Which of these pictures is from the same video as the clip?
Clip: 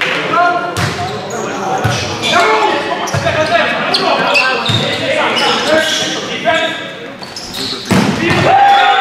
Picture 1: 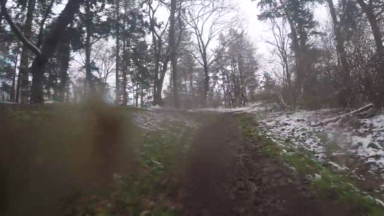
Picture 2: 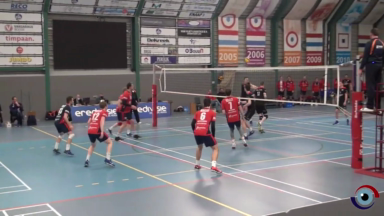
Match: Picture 2